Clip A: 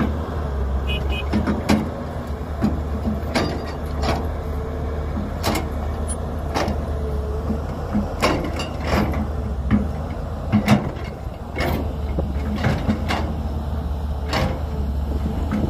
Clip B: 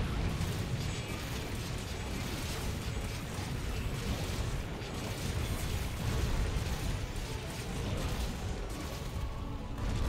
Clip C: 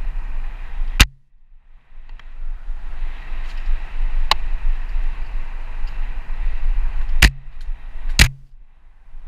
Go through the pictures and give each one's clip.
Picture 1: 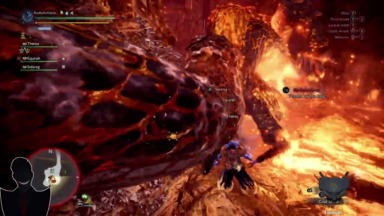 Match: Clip B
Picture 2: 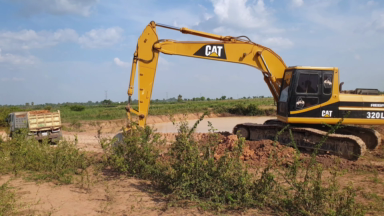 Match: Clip A